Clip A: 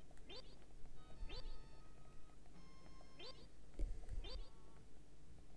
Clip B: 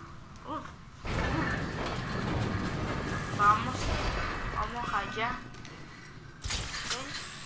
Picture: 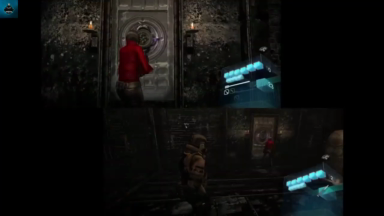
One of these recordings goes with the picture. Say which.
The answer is B